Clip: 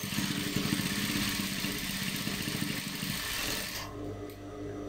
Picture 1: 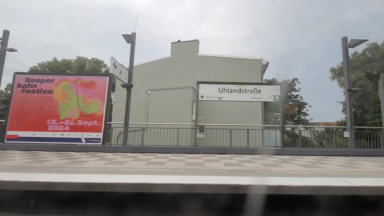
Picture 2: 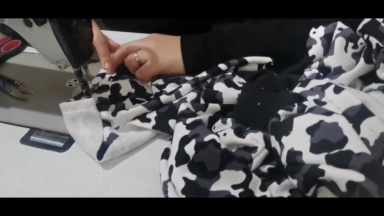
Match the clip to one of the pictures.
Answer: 2